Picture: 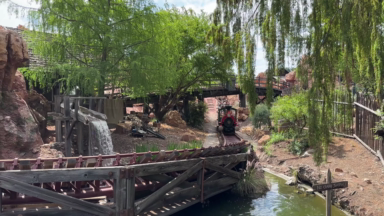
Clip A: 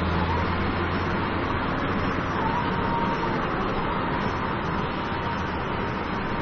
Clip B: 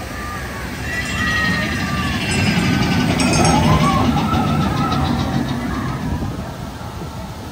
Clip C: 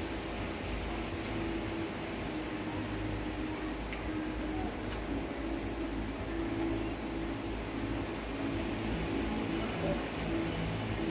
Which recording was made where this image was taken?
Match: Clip B